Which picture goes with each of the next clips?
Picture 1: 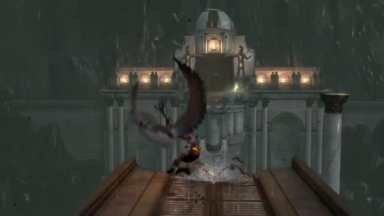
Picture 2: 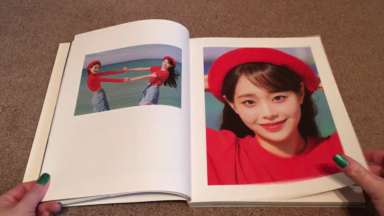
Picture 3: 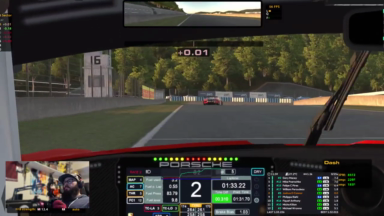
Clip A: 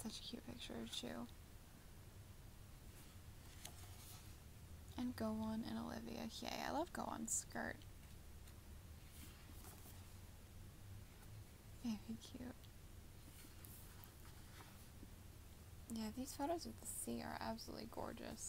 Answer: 2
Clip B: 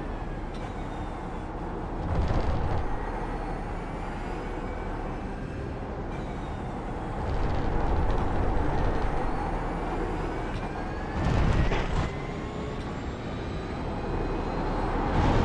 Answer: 3